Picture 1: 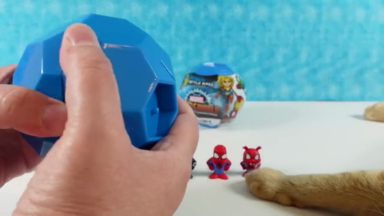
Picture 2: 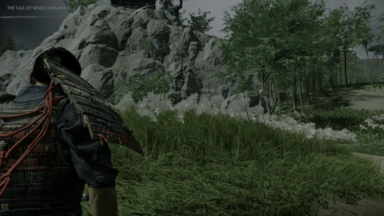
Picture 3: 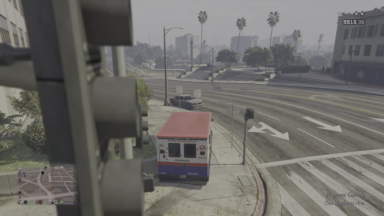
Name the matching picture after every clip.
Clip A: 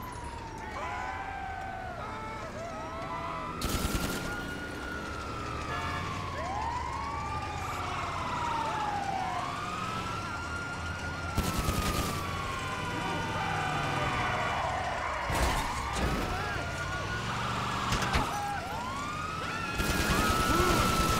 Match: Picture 3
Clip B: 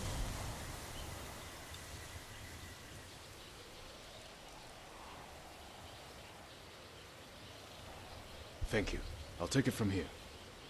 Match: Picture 2